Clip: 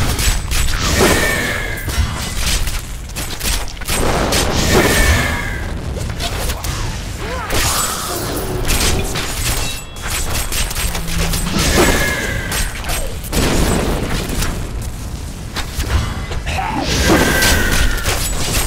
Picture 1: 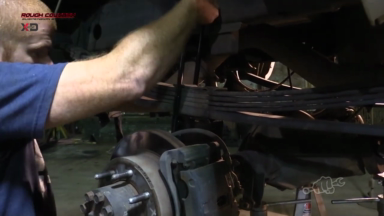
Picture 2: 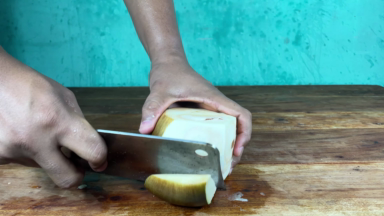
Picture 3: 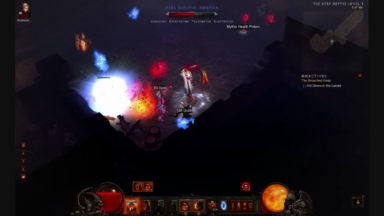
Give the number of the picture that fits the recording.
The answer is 3